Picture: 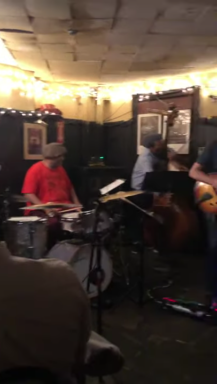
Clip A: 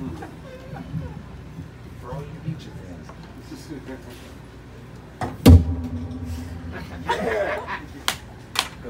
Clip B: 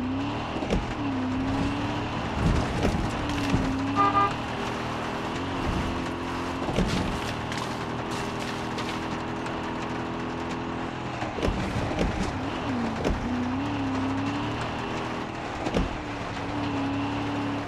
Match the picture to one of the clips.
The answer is A